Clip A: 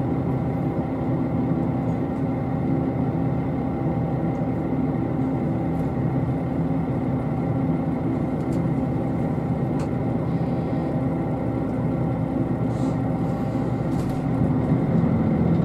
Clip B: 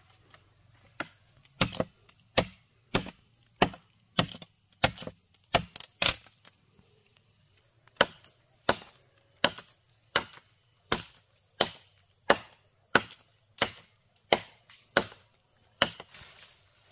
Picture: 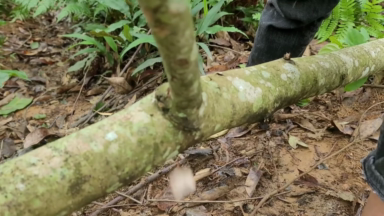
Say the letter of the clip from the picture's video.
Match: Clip B